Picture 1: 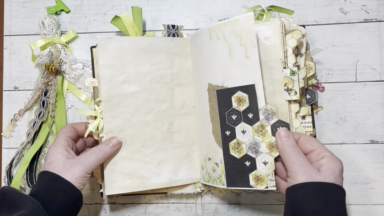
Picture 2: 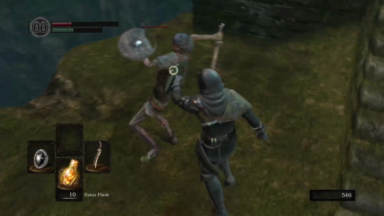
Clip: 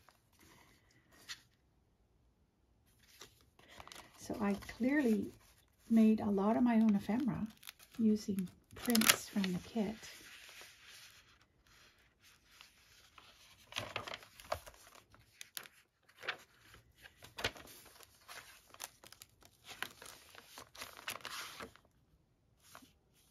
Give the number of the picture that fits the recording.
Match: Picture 1